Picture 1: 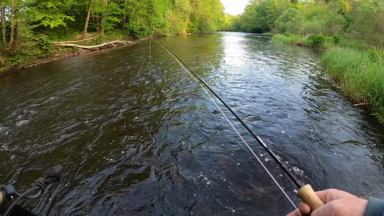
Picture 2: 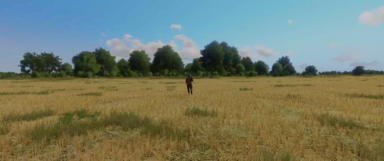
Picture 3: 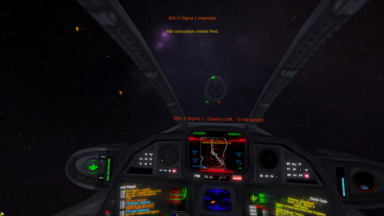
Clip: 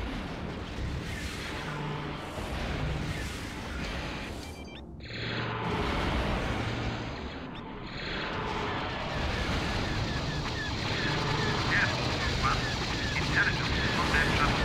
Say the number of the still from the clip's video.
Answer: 3